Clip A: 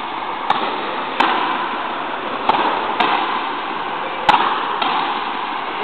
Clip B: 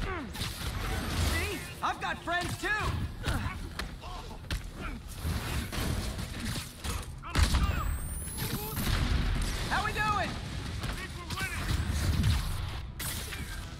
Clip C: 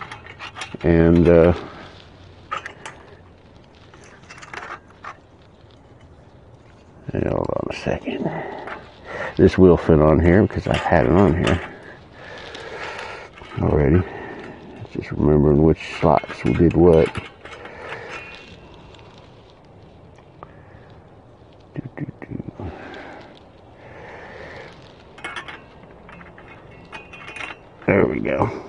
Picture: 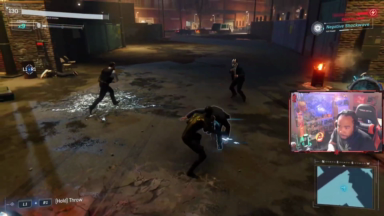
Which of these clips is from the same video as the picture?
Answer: B